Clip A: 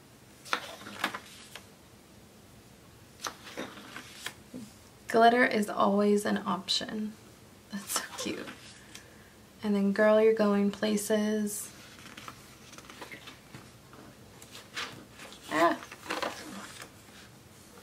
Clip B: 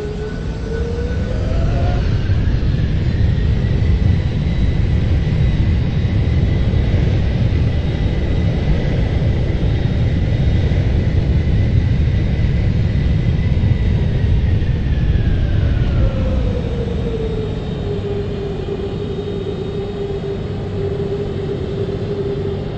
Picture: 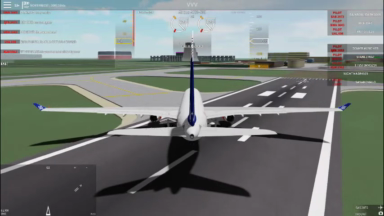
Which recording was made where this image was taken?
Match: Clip B